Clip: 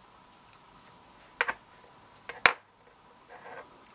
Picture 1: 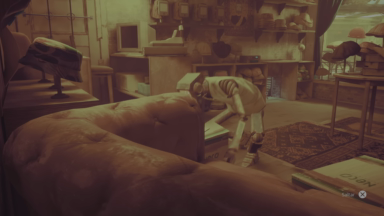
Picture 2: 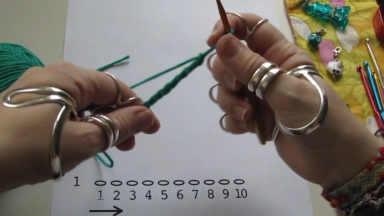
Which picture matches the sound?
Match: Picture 2